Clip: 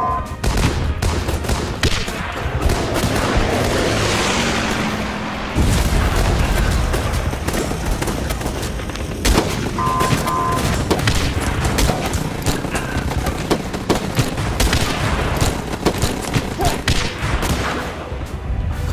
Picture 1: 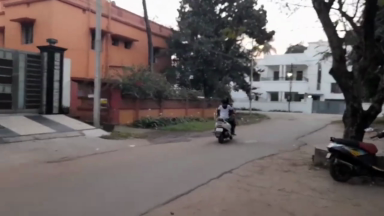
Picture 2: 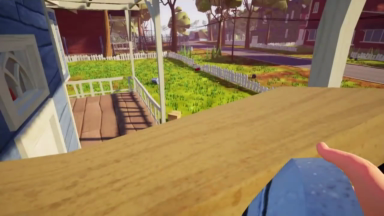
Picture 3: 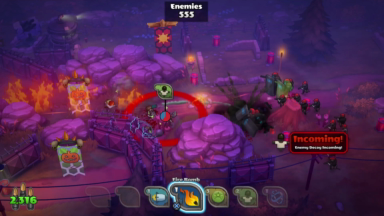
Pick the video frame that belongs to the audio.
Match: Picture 3